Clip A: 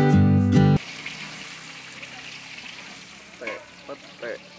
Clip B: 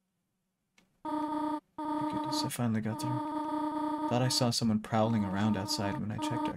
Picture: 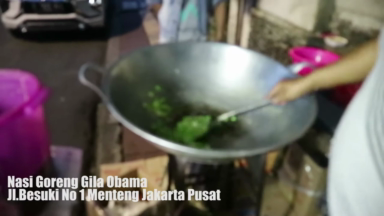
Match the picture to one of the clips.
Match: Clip A